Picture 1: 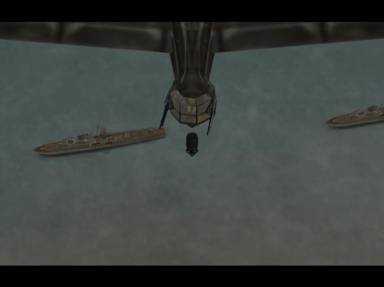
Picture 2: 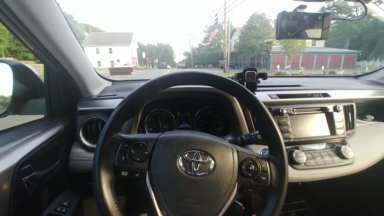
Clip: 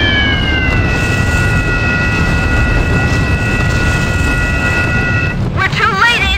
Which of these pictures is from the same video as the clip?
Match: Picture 1